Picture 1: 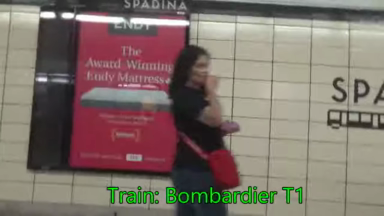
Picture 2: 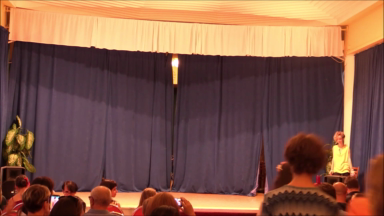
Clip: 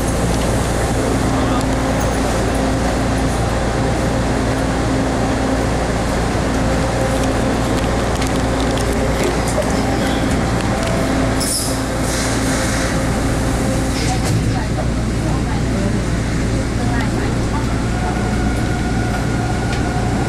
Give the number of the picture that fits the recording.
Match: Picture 1